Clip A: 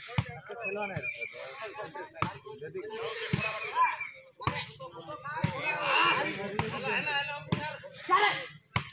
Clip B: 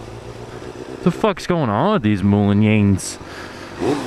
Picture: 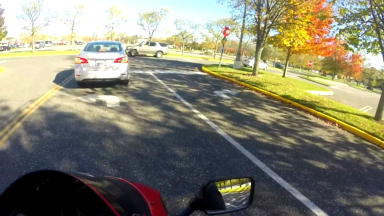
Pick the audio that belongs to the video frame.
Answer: B